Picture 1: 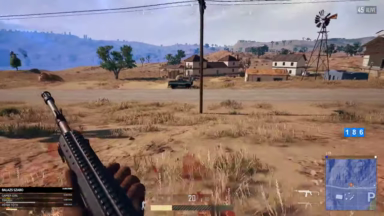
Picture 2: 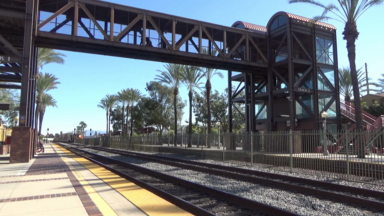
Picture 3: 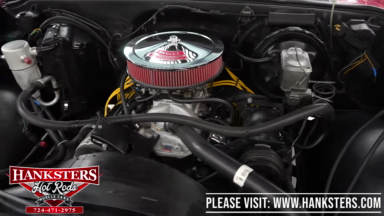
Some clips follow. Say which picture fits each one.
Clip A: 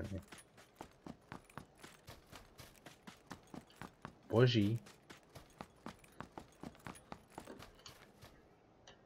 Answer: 1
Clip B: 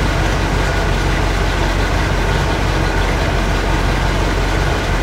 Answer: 3